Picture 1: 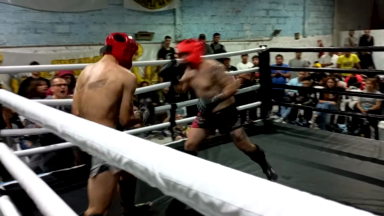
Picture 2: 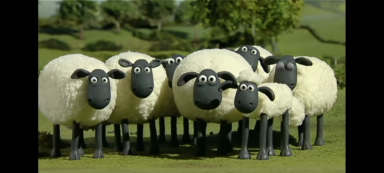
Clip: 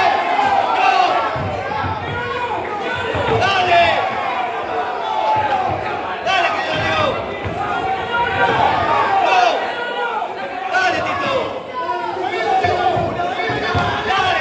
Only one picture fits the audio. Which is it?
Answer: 1